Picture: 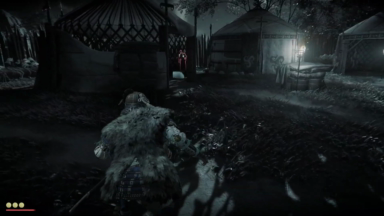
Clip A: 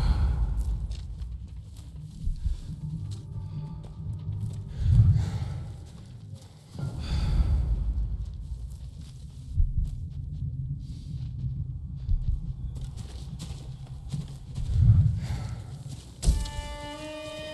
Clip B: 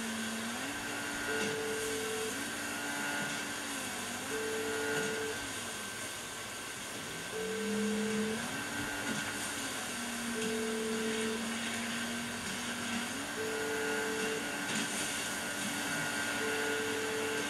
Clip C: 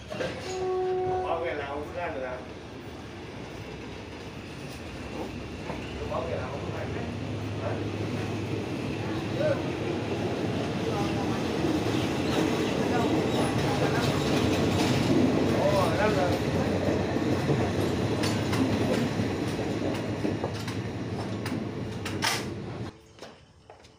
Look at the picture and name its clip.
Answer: A